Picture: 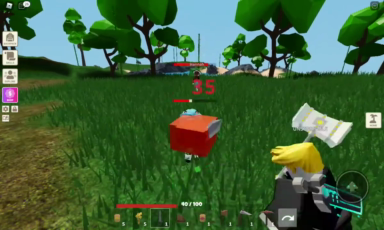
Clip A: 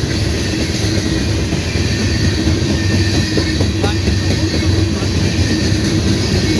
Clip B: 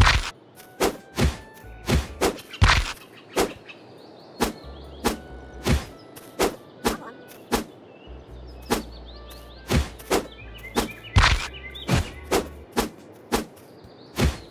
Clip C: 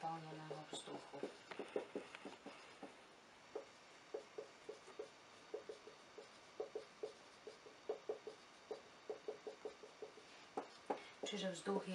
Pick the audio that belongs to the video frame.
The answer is B